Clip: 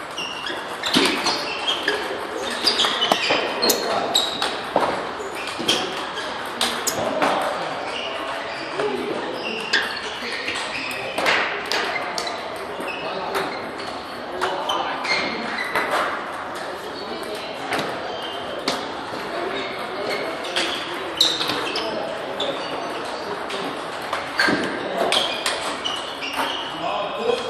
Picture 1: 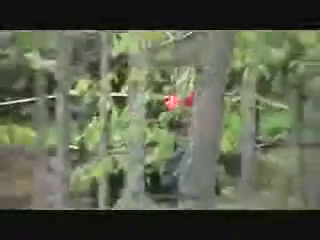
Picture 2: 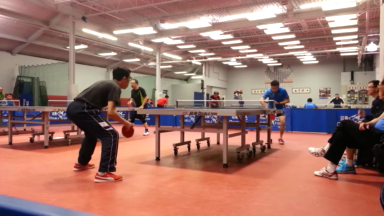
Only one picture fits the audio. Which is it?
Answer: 2